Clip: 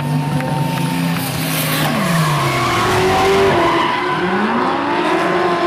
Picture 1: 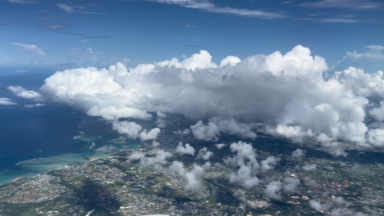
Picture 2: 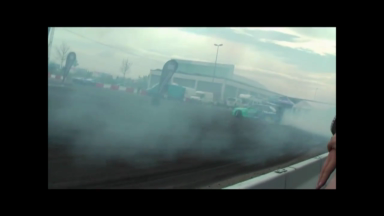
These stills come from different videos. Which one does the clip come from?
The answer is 2